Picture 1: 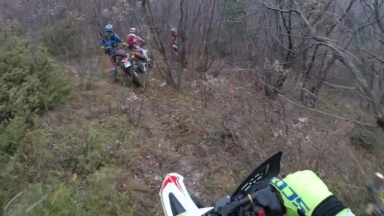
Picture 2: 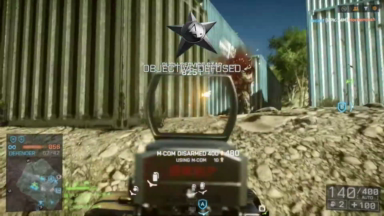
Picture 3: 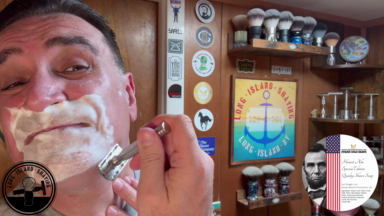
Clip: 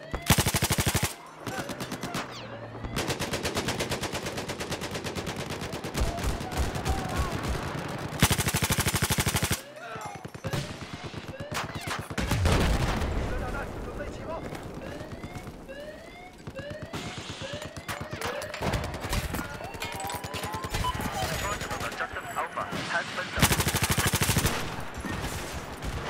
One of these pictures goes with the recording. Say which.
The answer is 2